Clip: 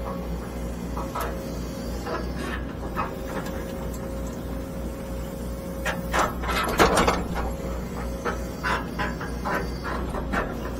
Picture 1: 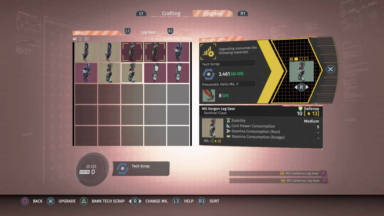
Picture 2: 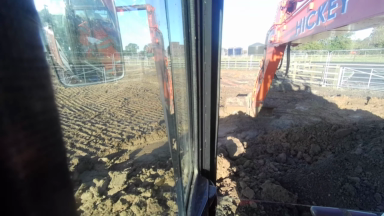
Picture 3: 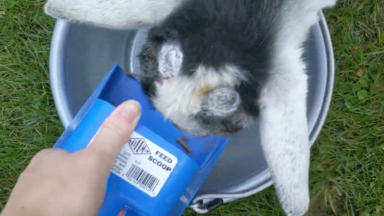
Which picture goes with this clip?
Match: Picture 2